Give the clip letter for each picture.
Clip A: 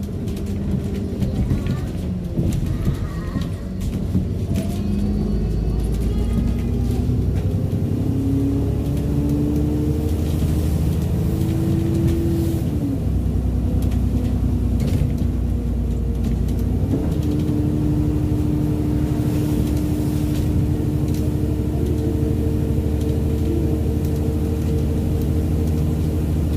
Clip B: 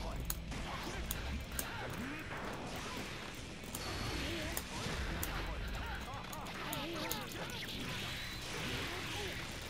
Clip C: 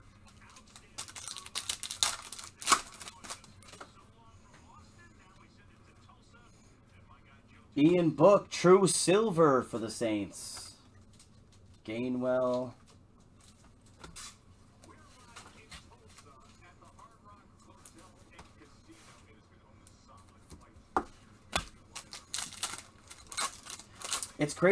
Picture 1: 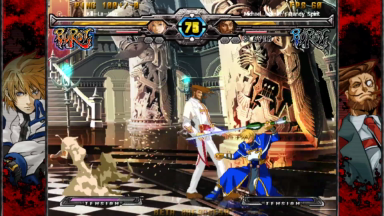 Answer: B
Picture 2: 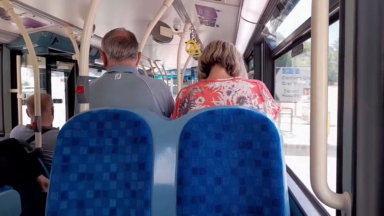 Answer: A